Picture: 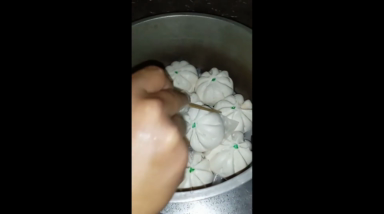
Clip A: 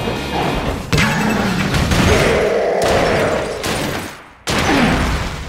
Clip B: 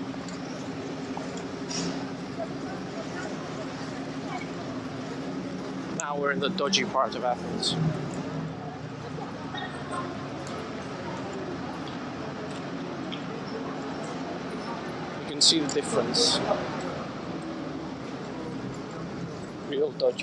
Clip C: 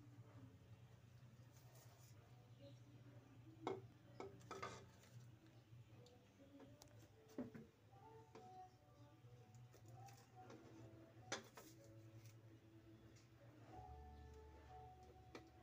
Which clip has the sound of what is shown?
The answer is C